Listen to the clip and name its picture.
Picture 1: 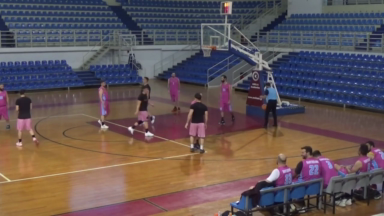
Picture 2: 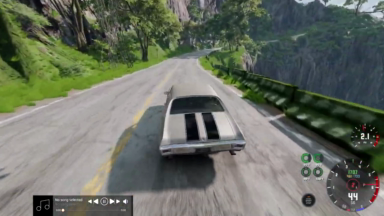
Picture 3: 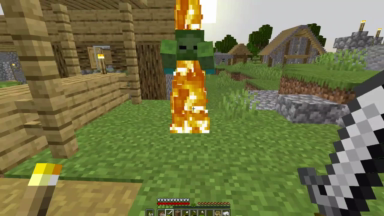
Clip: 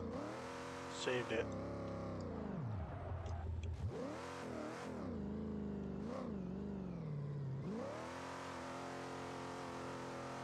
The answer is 2